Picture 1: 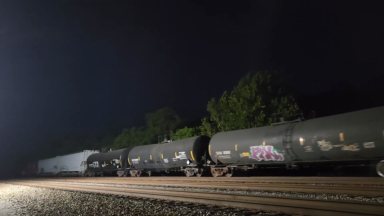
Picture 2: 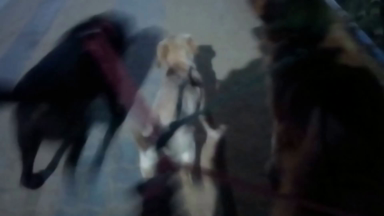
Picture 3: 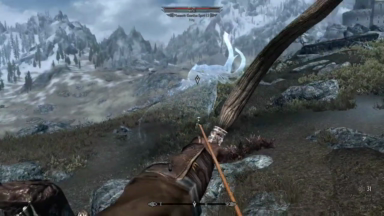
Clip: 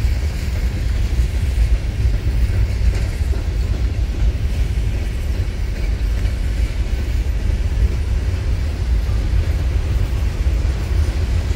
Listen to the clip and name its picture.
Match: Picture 1